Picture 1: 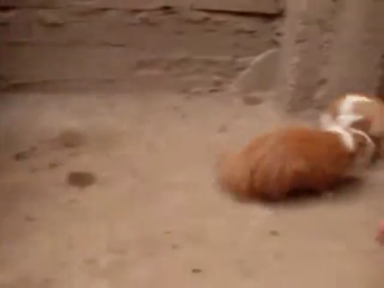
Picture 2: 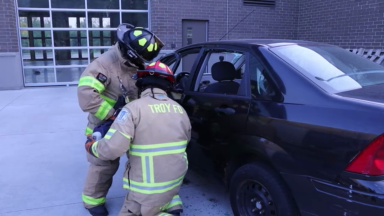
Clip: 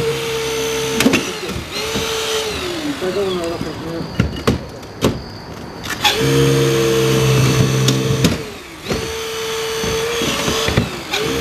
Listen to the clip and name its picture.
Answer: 2